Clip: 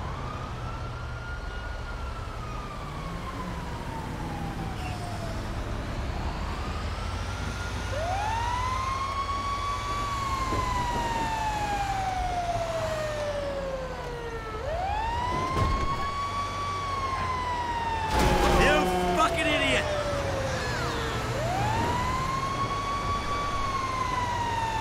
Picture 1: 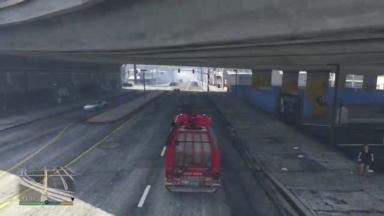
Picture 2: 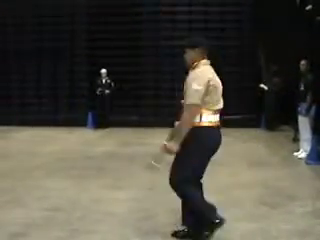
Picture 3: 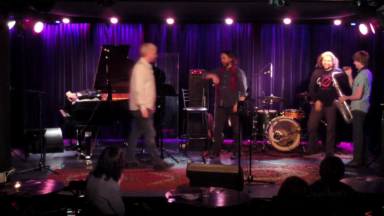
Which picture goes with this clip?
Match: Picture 1